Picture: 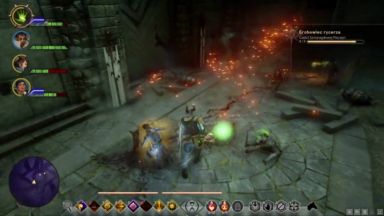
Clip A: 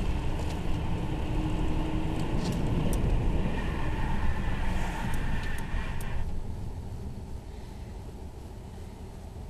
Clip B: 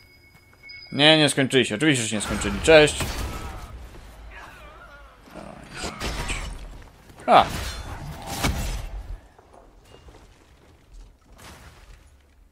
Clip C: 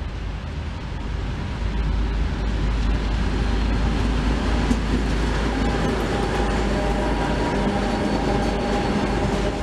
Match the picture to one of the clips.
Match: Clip B